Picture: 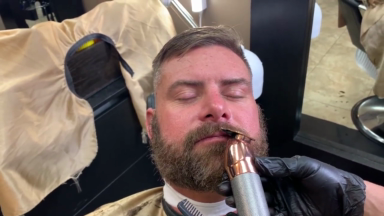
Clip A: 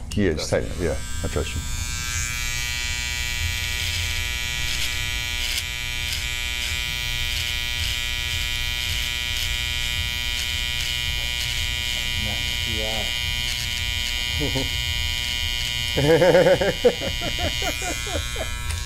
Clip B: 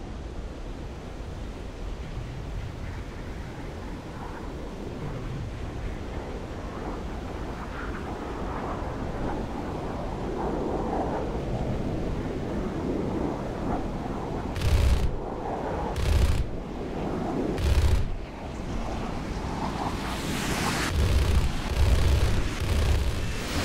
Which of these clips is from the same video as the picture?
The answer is A